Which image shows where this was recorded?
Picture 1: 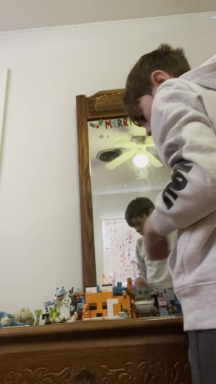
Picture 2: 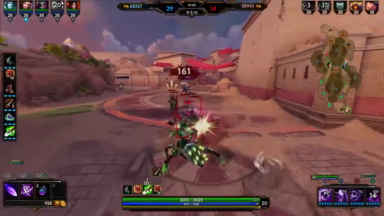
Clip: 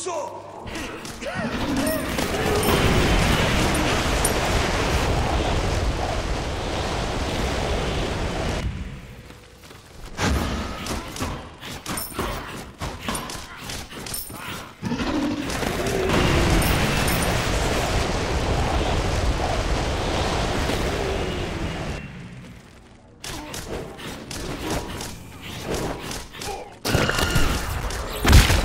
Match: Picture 2